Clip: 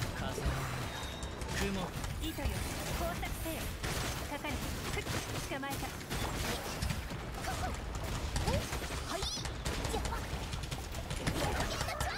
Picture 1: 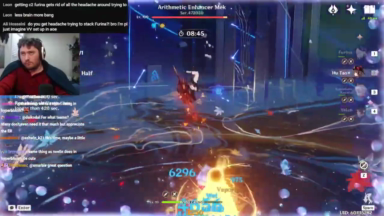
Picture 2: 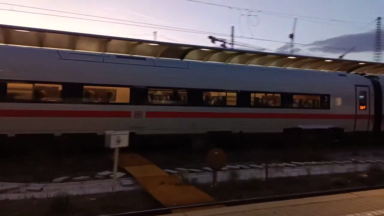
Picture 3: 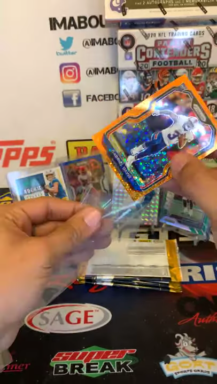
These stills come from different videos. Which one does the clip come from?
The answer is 1